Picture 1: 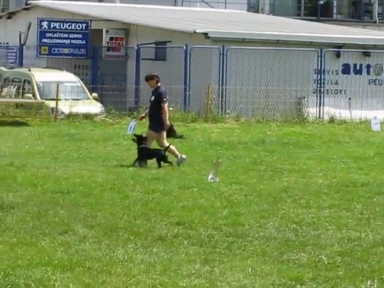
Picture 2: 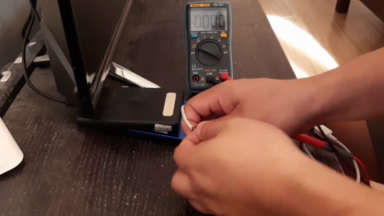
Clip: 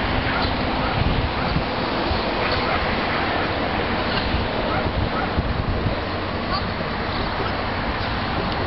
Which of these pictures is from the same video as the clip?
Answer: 1